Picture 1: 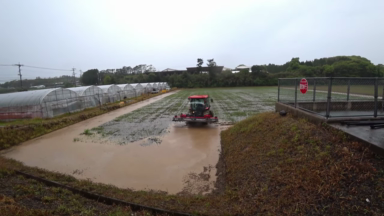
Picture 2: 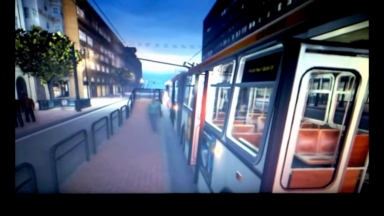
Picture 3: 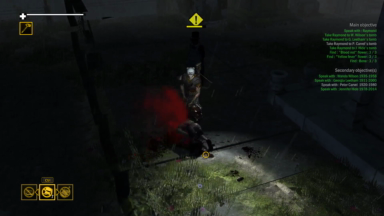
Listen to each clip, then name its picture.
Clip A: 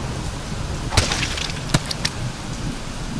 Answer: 3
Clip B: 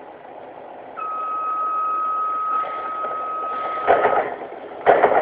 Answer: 2